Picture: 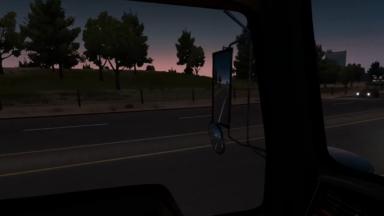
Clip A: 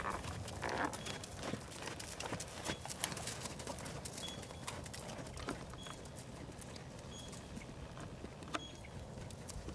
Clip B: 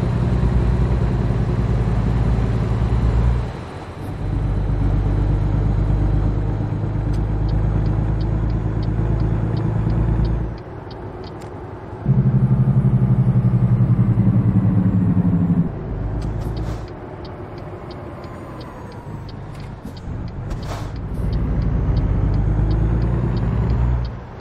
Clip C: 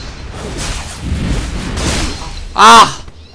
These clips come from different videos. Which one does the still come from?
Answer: B